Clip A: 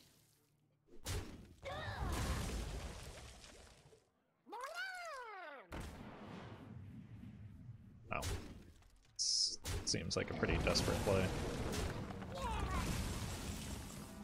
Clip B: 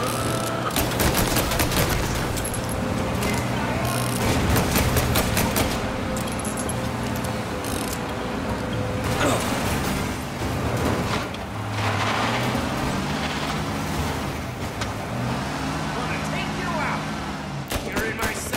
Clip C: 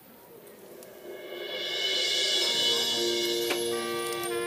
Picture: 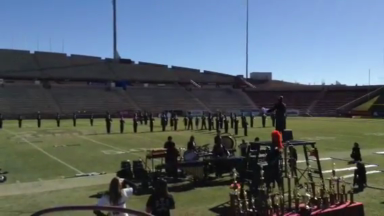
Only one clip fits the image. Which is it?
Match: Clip C